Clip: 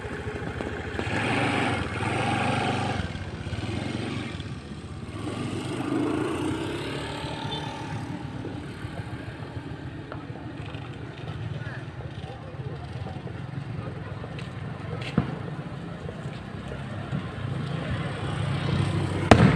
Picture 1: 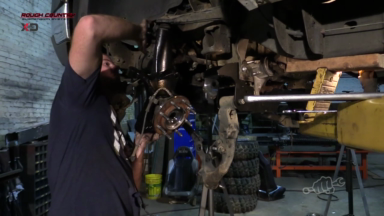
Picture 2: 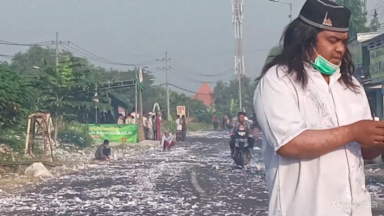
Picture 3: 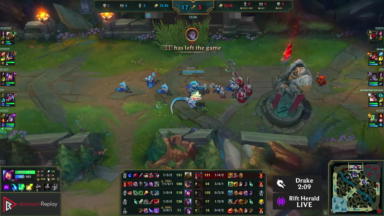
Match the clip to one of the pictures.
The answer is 2